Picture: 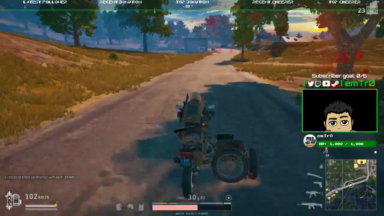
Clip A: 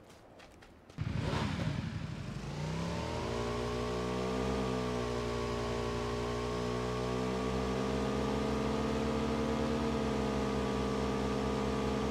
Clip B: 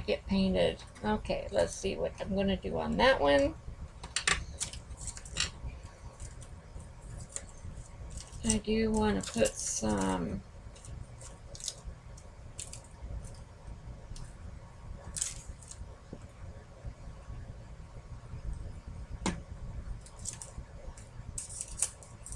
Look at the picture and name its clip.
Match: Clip A